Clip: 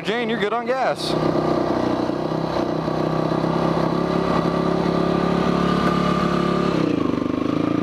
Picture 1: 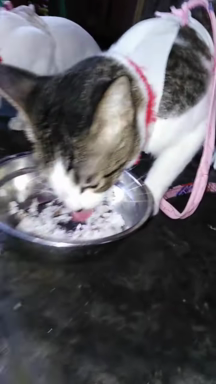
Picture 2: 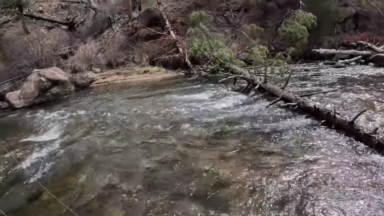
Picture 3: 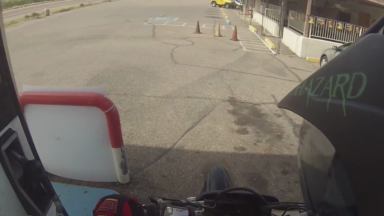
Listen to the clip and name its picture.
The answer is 3